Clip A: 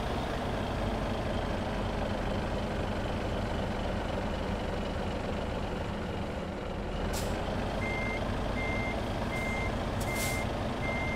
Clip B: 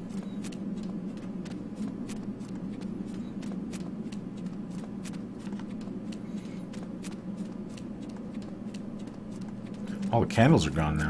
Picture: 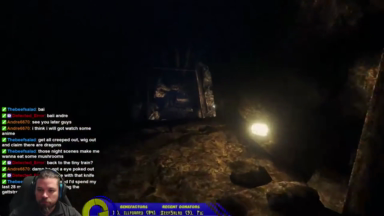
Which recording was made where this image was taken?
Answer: B